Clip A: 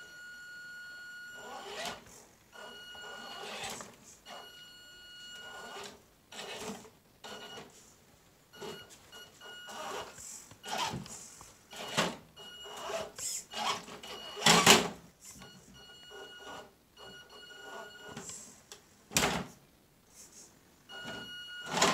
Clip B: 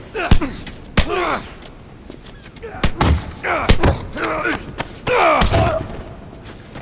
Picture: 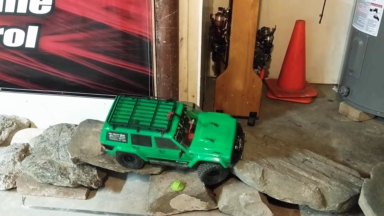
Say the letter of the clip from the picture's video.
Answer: A